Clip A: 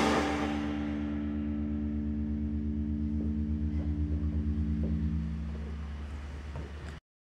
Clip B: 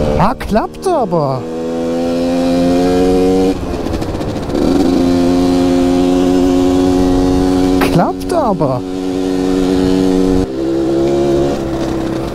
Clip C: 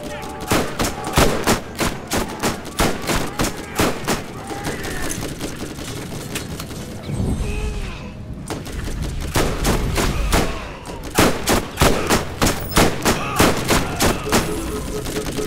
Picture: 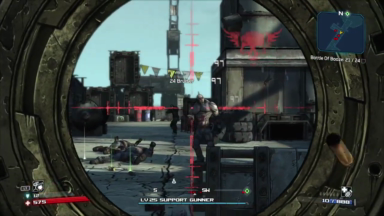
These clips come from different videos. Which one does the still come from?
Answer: C